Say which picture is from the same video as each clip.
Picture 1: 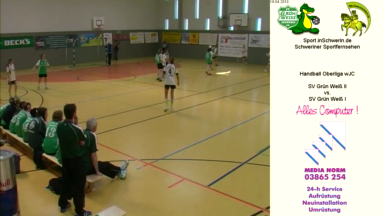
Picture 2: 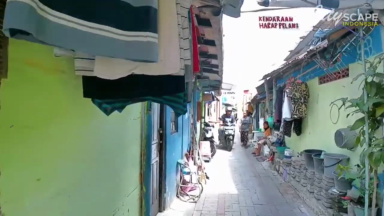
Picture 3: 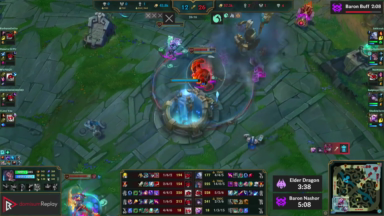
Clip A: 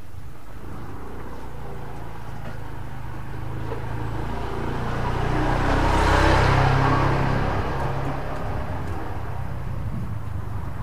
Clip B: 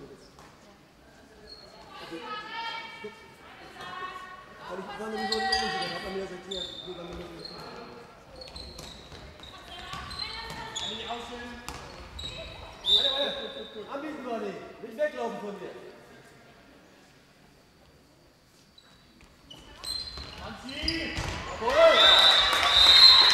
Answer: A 2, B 1